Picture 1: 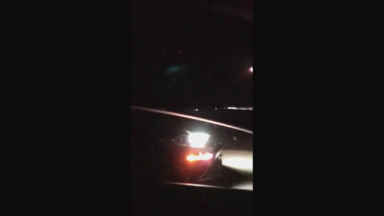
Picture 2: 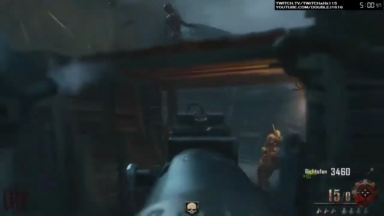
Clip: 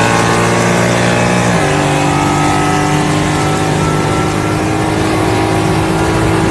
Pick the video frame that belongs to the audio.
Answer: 1